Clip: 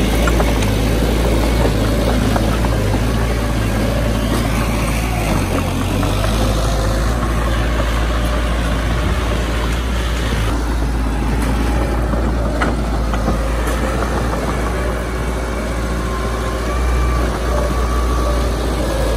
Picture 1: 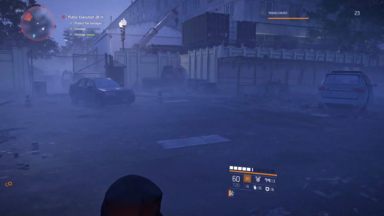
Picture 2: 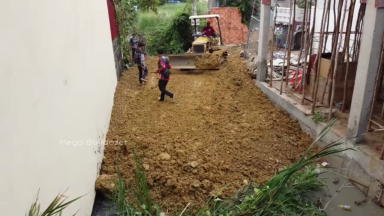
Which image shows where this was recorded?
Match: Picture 2